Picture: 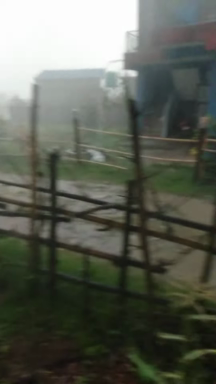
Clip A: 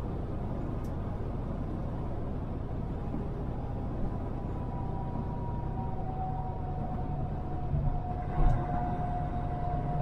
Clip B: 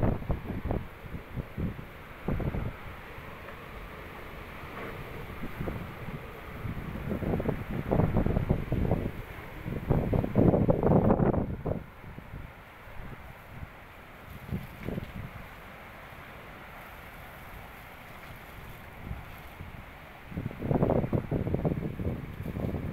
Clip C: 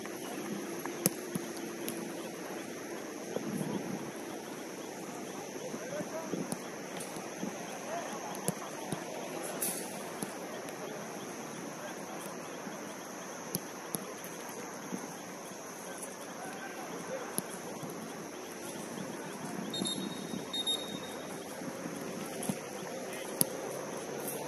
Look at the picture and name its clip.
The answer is B